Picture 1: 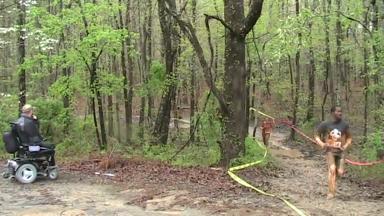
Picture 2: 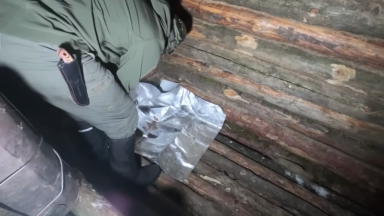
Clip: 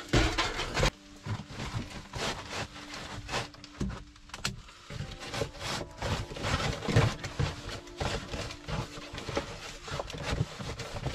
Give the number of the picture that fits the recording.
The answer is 2